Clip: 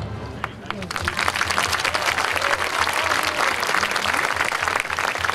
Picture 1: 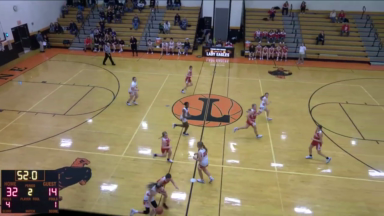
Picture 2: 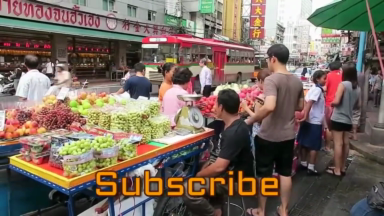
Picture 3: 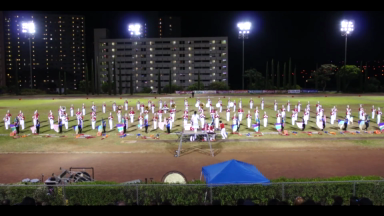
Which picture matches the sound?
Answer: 3